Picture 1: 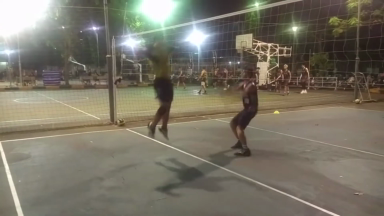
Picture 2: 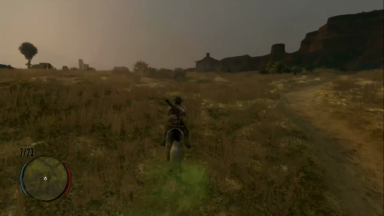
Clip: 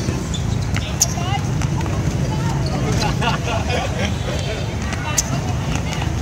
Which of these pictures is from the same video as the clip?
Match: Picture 1